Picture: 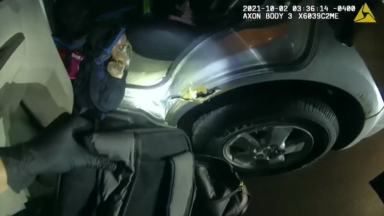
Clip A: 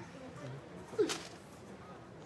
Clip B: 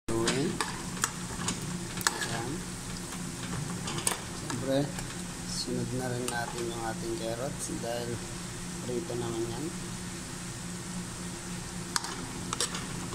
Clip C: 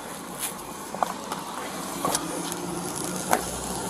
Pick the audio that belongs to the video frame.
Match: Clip C